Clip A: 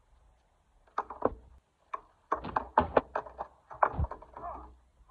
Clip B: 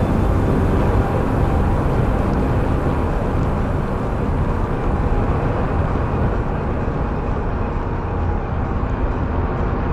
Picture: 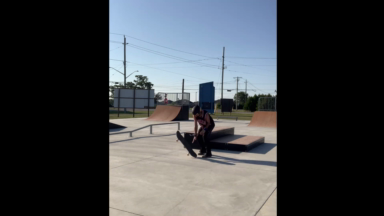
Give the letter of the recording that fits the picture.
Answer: A